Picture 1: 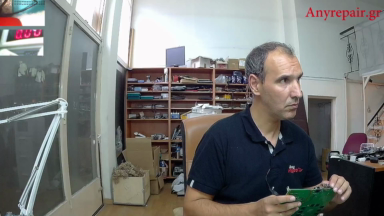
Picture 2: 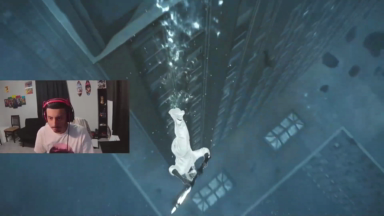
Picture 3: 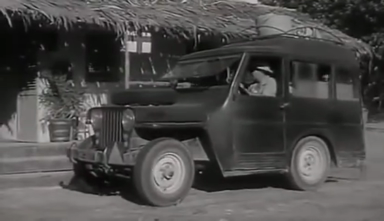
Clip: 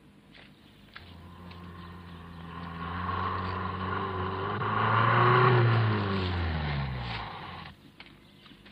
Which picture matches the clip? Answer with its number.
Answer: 3